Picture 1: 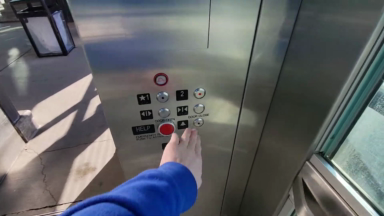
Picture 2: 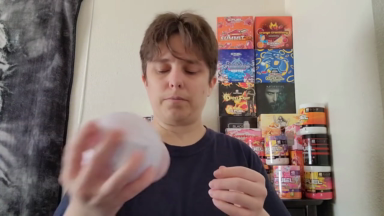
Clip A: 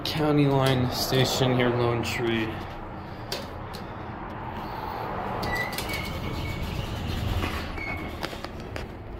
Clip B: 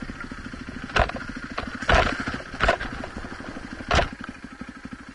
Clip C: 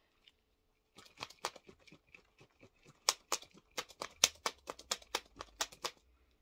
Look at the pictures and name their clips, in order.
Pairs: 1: A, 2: C